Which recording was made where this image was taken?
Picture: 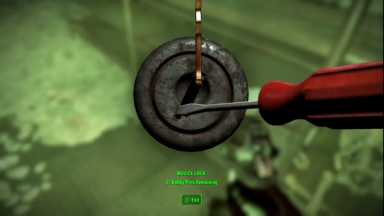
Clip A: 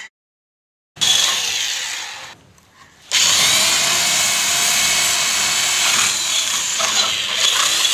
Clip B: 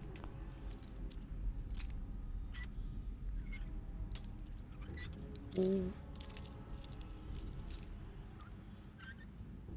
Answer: B